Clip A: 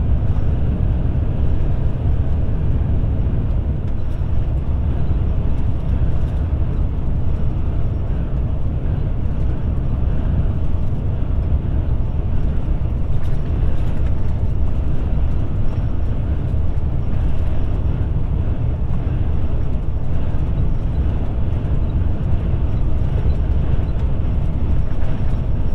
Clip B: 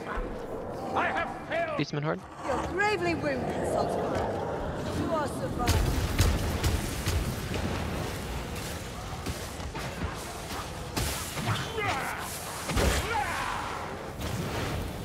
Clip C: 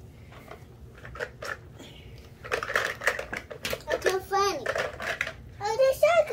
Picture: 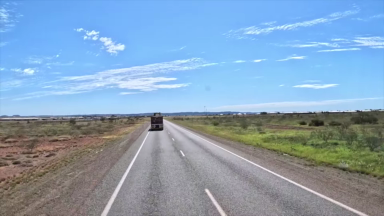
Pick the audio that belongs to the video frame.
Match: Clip A